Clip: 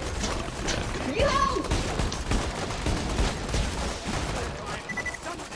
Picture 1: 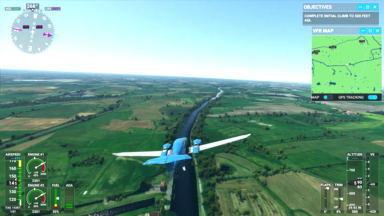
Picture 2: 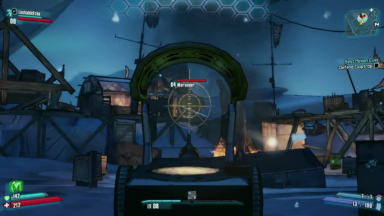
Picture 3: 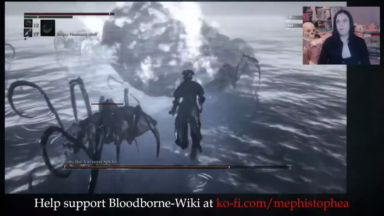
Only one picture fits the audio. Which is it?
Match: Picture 2